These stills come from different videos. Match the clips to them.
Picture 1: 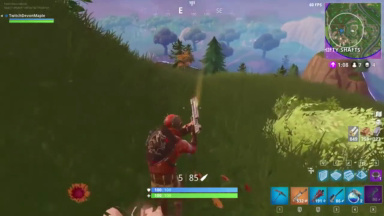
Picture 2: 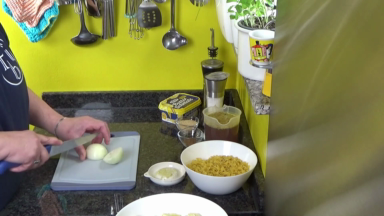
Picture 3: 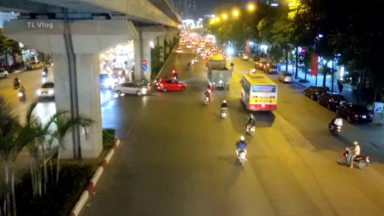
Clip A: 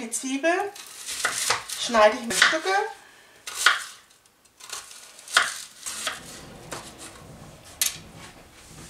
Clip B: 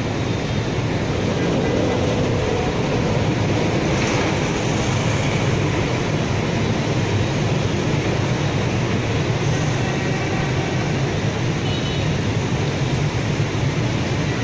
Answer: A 2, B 3